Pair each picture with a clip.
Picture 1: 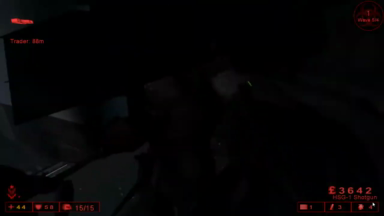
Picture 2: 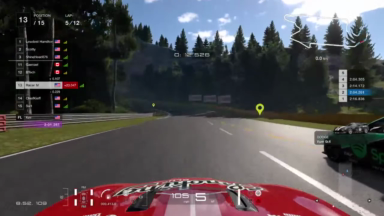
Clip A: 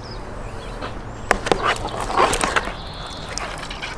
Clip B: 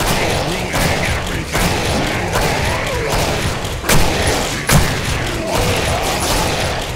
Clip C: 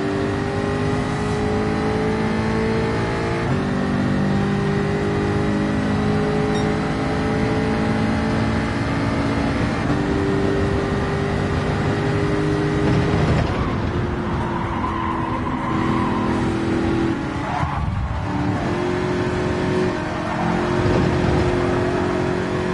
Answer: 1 B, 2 C